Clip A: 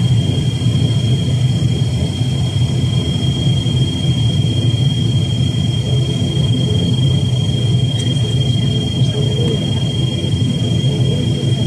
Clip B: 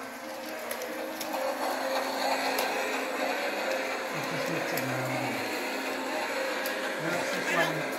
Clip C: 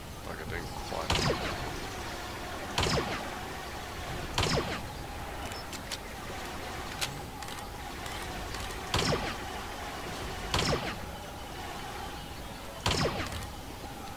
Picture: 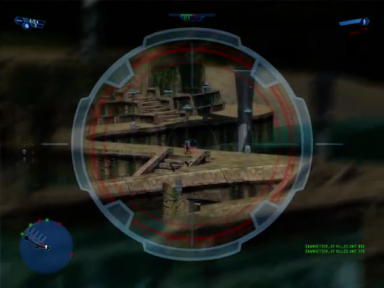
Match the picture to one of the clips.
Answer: C